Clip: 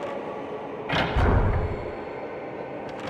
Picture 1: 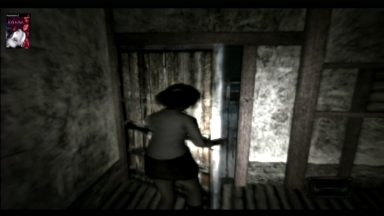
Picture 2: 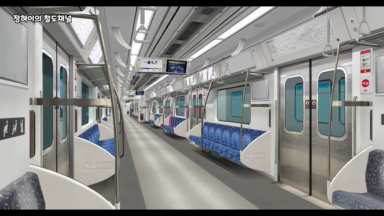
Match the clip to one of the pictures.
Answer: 1